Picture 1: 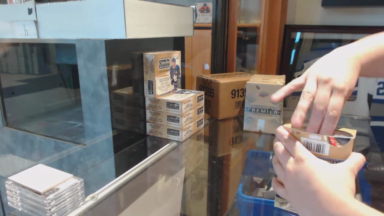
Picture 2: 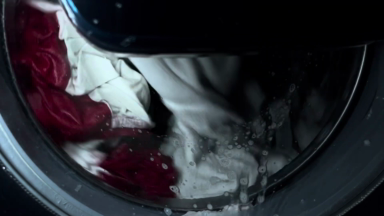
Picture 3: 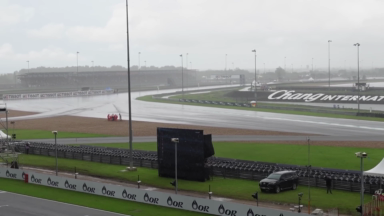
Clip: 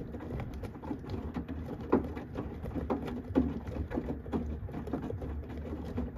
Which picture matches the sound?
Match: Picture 2